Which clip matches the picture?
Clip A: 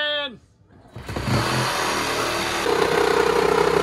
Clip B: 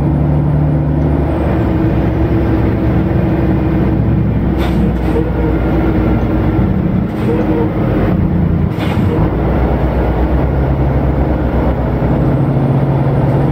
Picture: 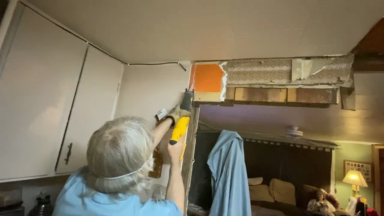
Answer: A